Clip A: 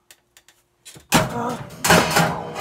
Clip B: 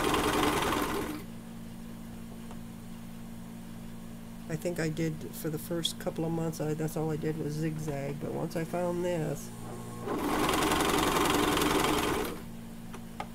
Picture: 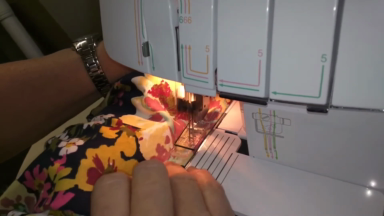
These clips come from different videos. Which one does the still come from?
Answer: B